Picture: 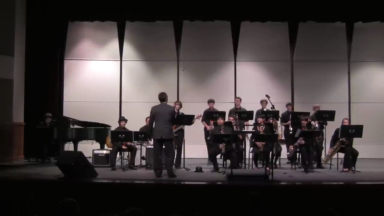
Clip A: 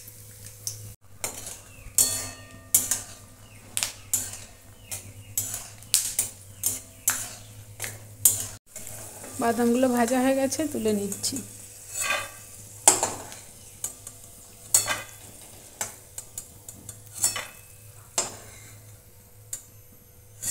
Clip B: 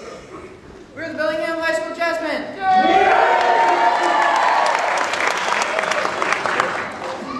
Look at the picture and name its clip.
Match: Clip B